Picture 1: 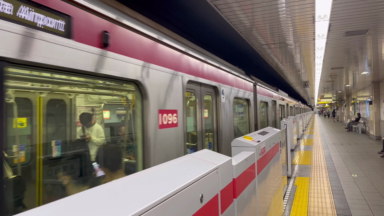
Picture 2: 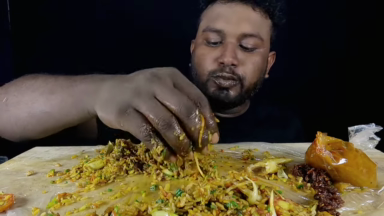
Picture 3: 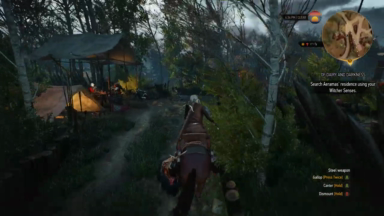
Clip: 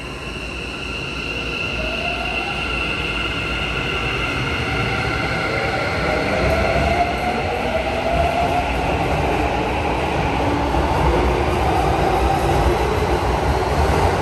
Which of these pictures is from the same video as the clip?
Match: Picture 1